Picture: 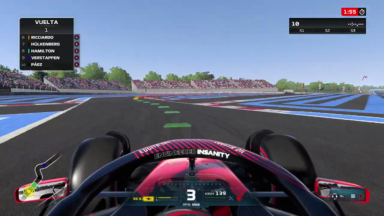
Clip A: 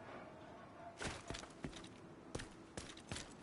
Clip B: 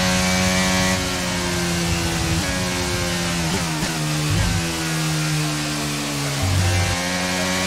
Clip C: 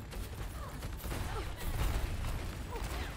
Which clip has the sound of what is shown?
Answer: B